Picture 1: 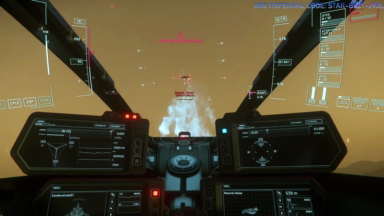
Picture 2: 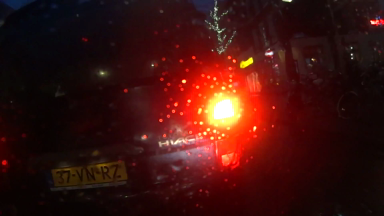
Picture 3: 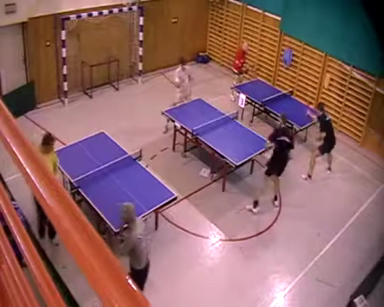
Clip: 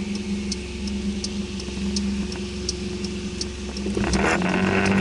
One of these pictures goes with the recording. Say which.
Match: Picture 2